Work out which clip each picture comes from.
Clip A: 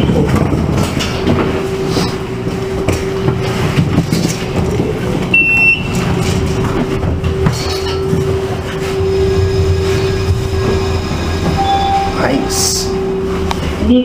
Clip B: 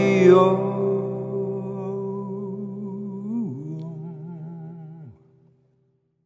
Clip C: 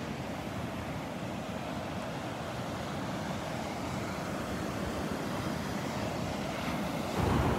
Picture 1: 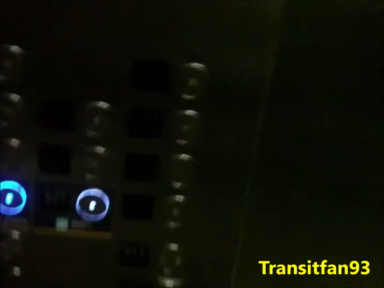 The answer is A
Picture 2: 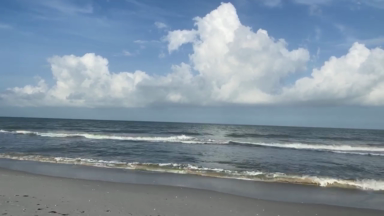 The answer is C